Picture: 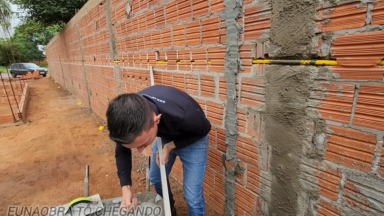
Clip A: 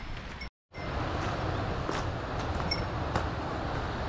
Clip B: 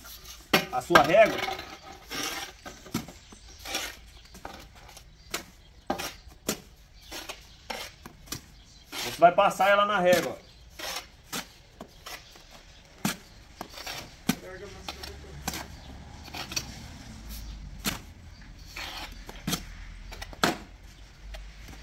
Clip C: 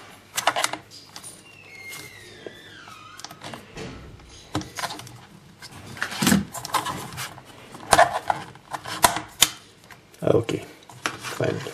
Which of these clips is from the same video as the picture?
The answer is B